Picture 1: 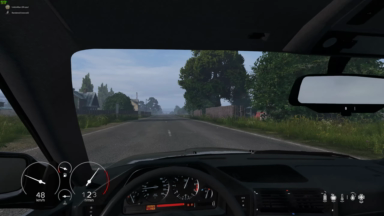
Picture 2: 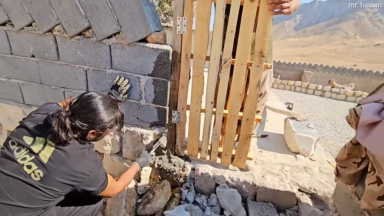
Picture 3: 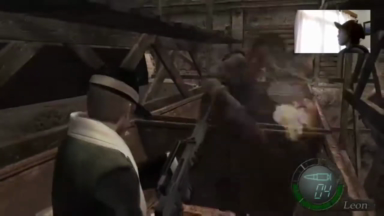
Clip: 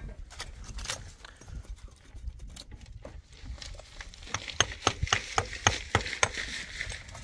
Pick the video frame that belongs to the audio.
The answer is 2